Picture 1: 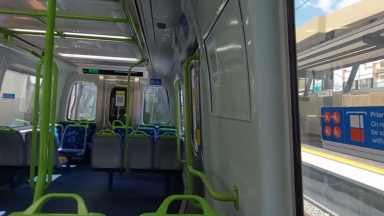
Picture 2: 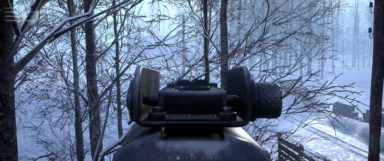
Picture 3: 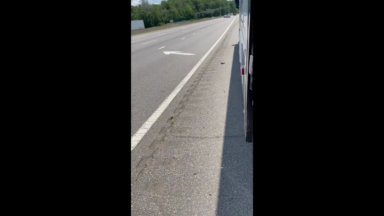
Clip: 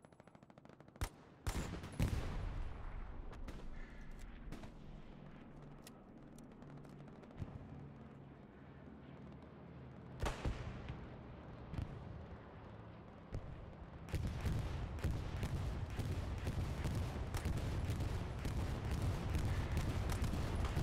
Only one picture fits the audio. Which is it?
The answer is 2